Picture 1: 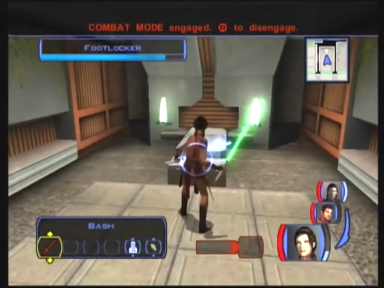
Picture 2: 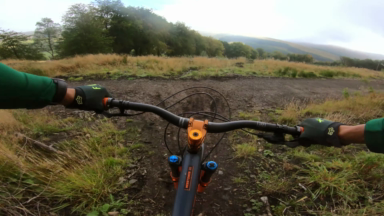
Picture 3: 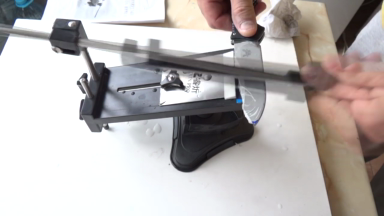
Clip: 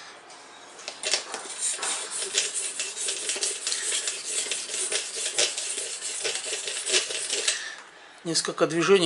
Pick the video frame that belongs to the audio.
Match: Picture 3